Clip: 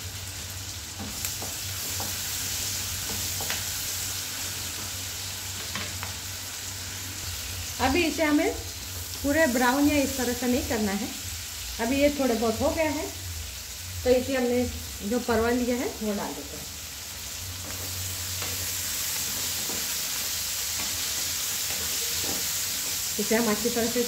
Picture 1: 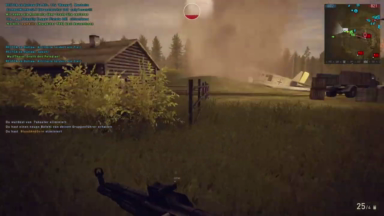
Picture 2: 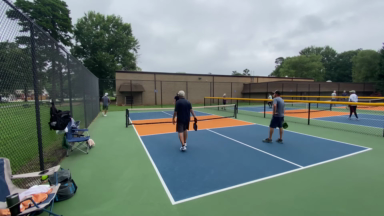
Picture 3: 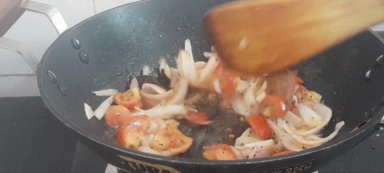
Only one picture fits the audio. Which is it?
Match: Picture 3